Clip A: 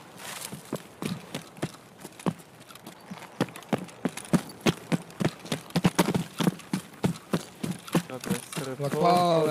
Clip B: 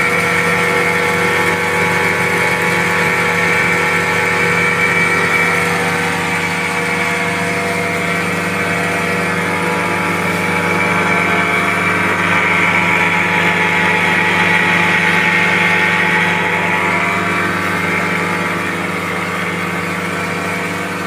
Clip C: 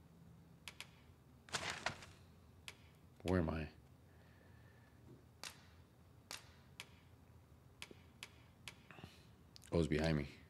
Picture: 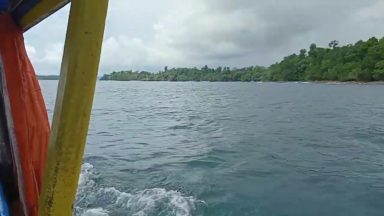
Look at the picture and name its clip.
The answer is B